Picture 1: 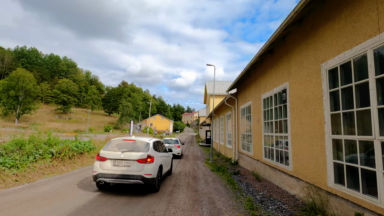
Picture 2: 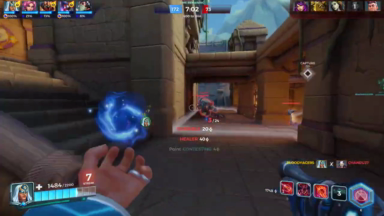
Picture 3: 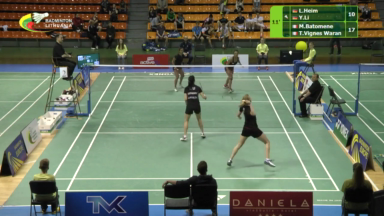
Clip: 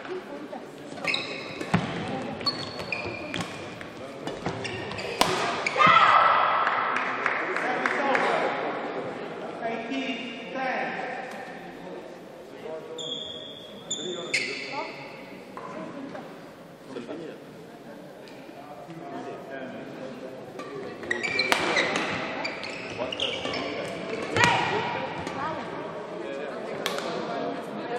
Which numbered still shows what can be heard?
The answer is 3